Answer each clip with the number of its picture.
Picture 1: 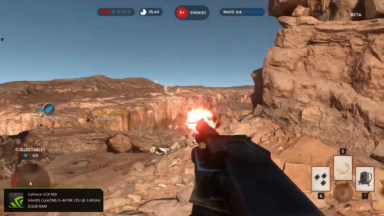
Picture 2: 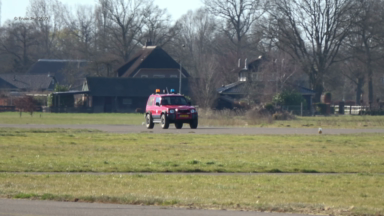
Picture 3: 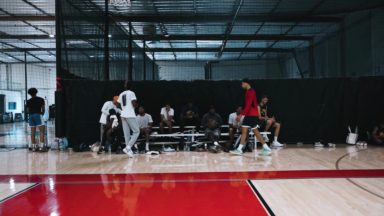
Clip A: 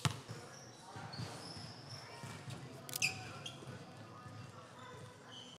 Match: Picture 3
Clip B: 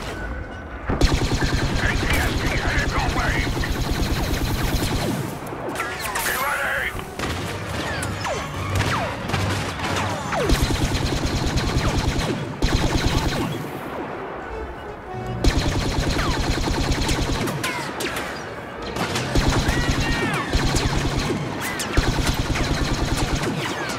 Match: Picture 1